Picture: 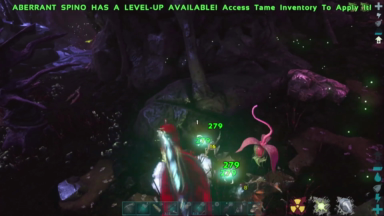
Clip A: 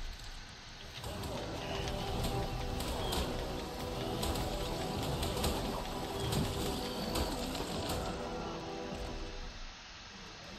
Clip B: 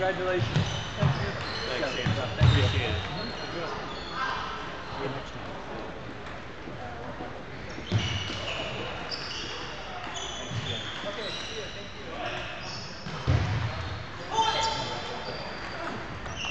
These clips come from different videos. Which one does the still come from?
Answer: A